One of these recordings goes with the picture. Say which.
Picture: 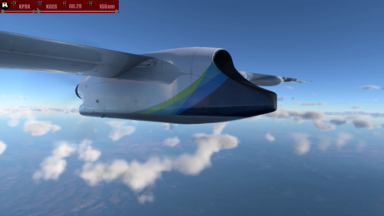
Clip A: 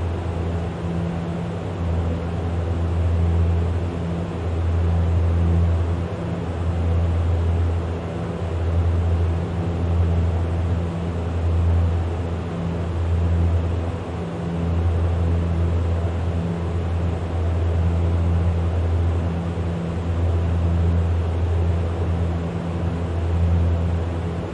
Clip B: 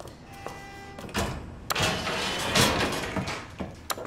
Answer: A